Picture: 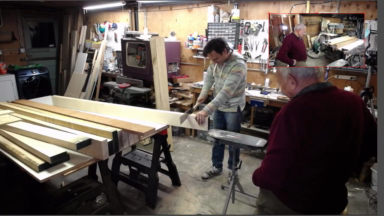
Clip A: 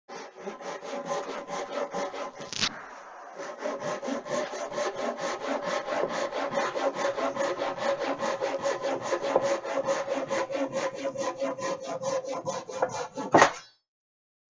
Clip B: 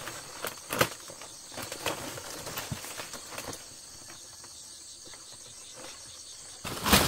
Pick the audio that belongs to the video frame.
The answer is A